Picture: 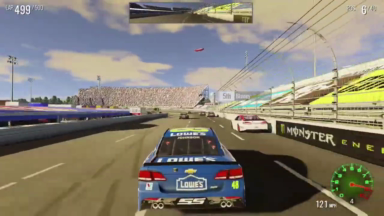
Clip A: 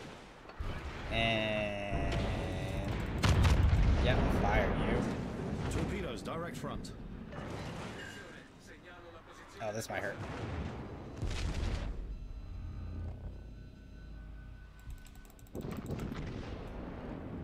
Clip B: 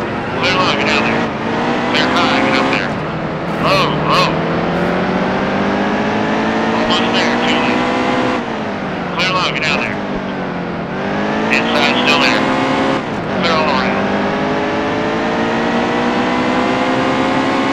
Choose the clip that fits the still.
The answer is B